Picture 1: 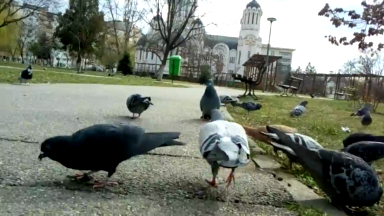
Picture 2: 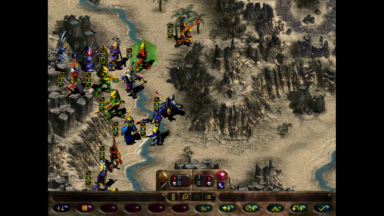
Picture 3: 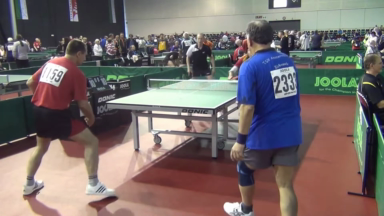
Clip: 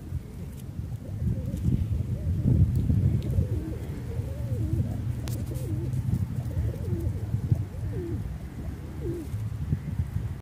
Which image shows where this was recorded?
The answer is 1